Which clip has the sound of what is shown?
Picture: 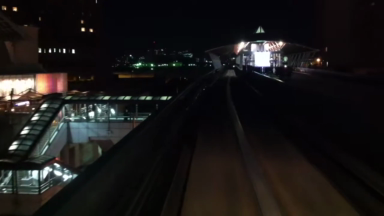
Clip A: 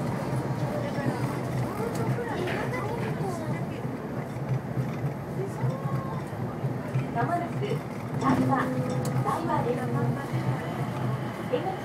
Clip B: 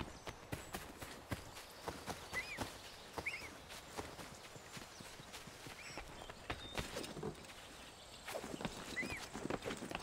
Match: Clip A